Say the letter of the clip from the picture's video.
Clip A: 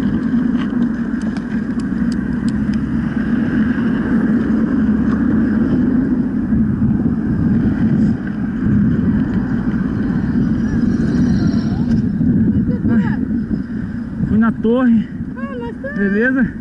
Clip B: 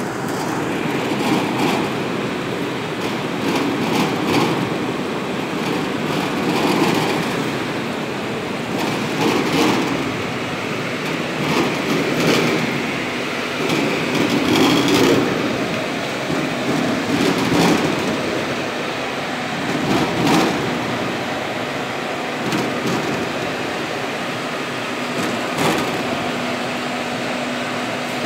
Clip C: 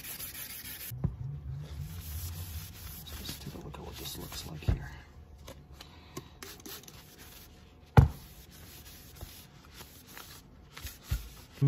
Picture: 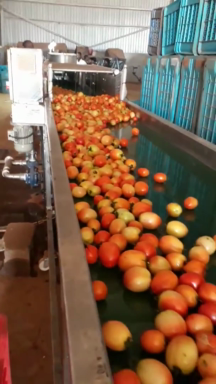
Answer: B